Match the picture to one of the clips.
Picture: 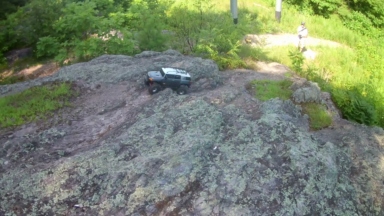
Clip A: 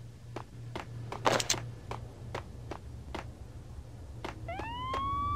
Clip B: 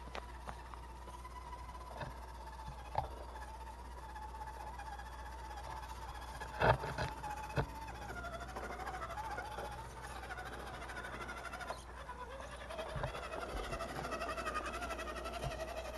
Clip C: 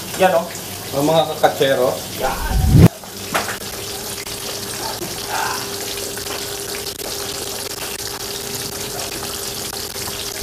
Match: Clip B